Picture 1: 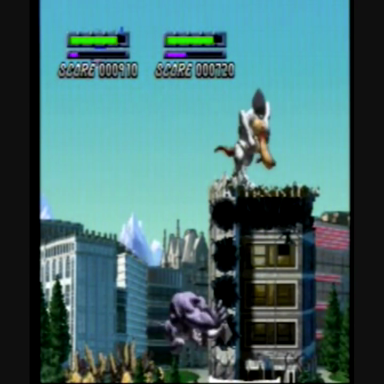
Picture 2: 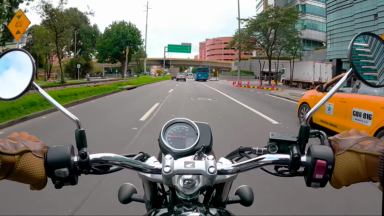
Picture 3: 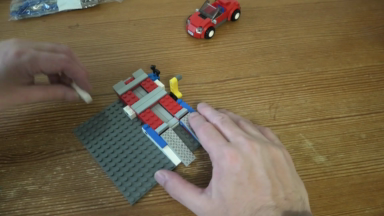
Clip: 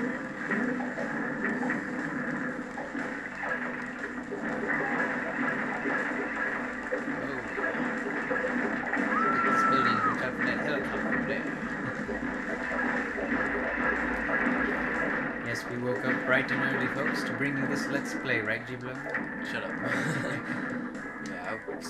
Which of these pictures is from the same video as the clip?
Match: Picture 1